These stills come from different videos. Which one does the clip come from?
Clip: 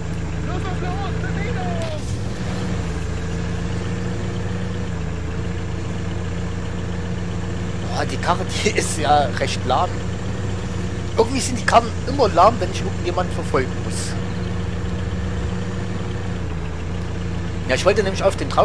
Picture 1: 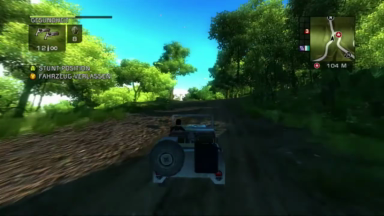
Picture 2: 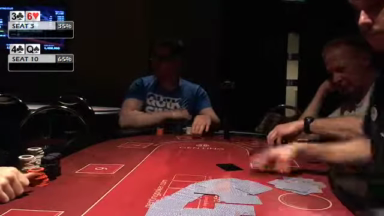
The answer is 1